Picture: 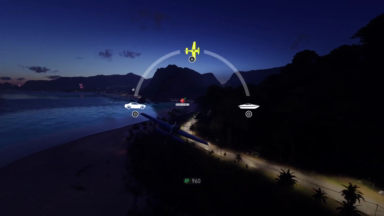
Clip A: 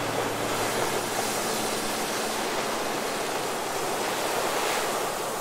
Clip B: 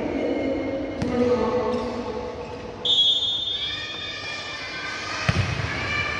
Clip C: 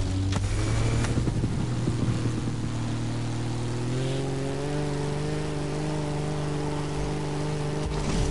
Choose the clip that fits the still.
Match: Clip C